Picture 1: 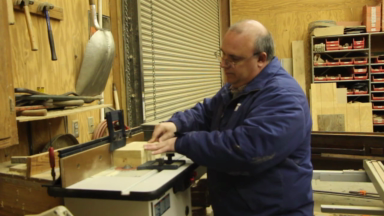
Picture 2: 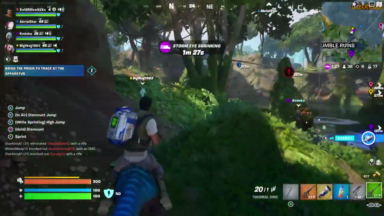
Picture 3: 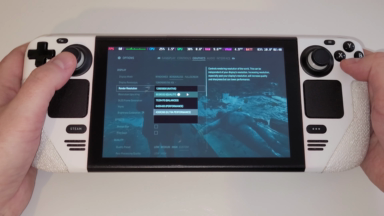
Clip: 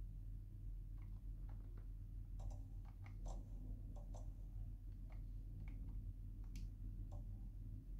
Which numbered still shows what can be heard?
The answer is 3